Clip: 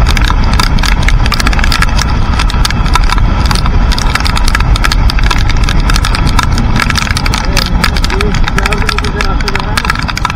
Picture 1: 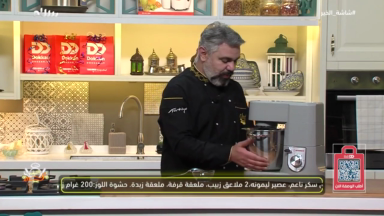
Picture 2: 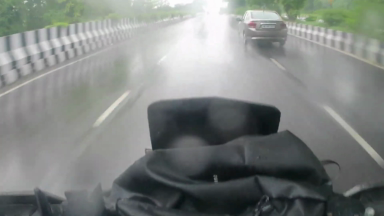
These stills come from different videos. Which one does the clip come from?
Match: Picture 2